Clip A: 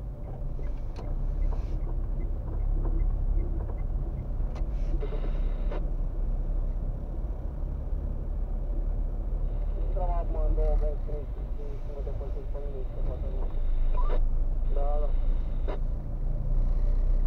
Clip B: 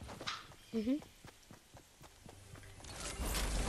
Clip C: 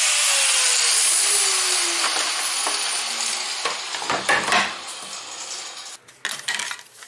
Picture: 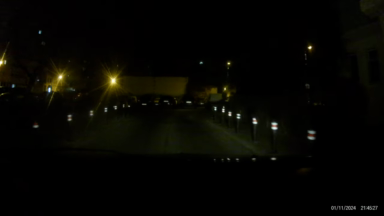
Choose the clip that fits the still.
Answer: A